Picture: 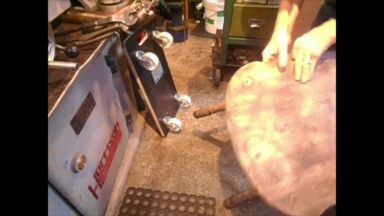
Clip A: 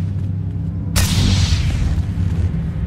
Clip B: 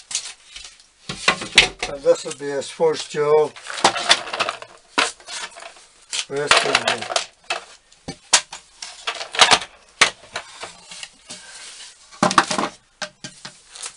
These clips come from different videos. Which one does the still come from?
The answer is B